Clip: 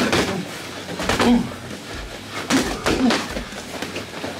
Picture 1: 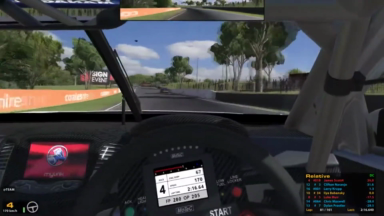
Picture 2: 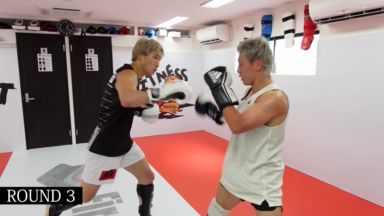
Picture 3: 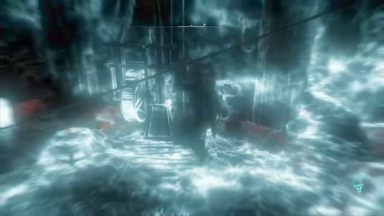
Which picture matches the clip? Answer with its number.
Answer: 2